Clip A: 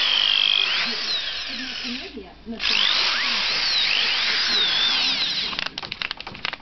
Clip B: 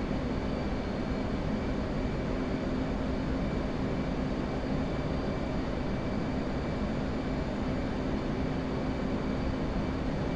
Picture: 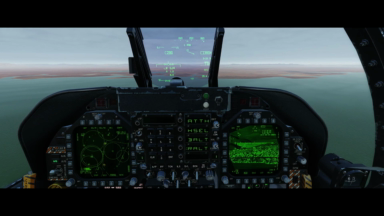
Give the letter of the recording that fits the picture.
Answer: B